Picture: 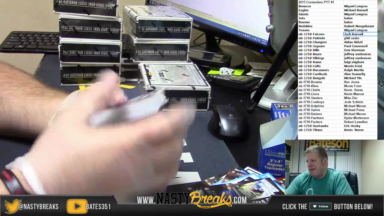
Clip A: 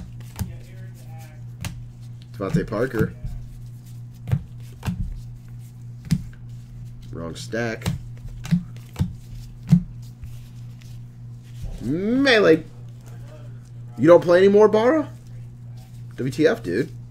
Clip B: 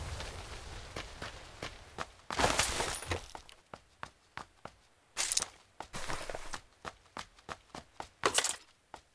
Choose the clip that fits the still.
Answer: A